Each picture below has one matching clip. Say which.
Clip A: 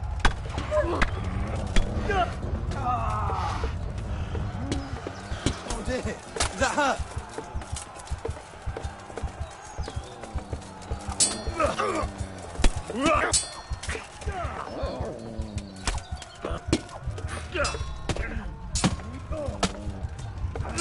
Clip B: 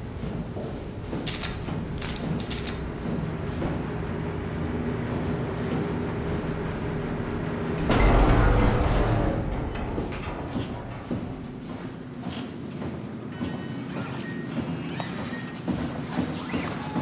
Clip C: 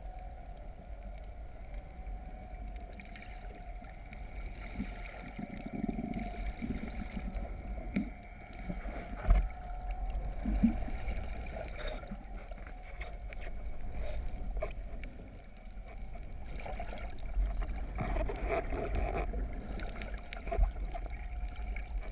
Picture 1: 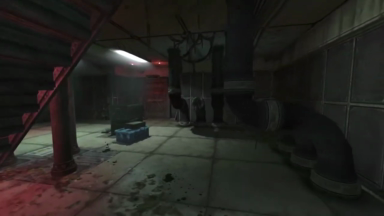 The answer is B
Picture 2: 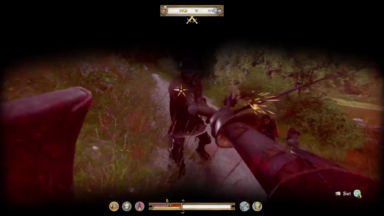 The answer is A